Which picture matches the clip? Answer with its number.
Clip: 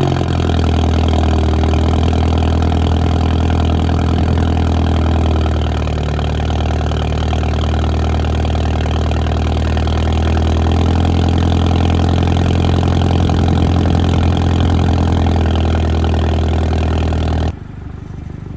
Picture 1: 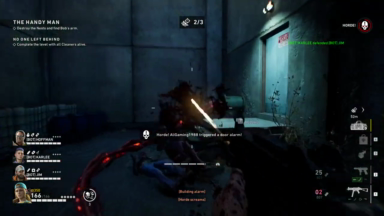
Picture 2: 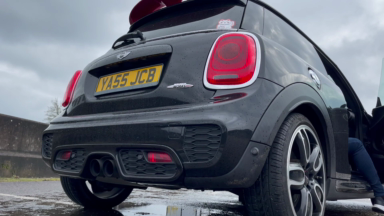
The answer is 2